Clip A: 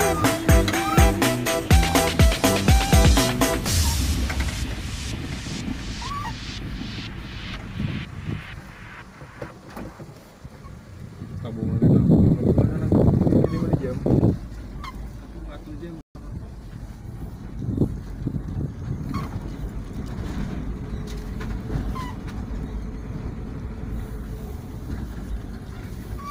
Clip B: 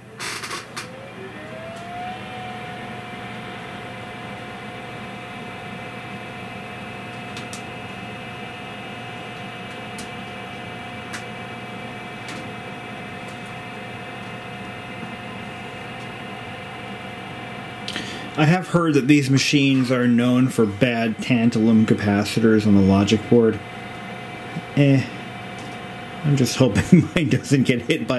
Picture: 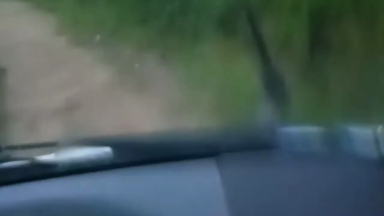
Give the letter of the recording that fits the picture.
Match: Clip A